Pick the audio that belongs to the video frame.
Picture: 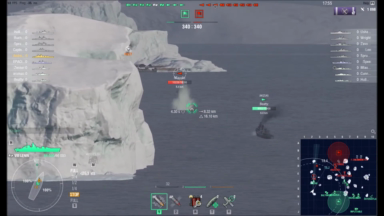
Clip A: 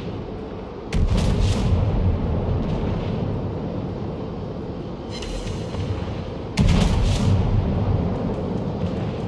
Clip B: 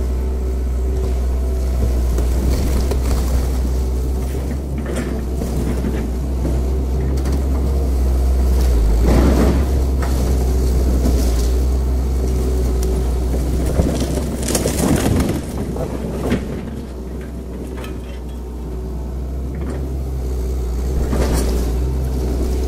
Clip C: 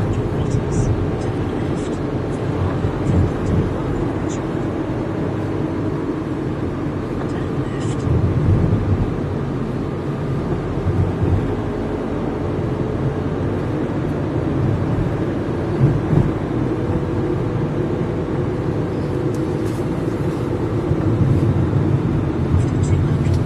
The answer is A